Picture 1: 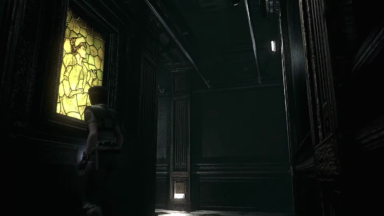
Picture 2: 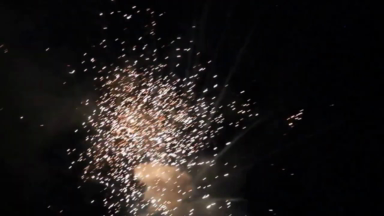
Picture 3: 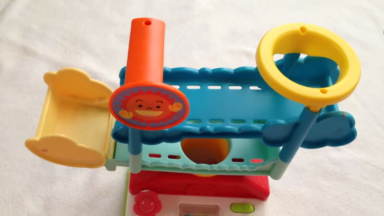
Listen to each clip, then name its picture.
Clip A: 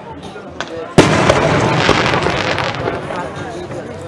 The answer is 2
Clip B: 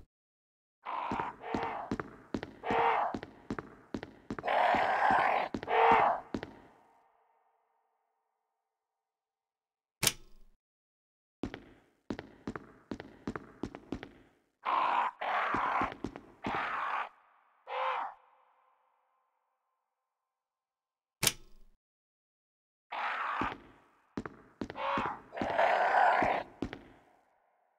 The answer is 1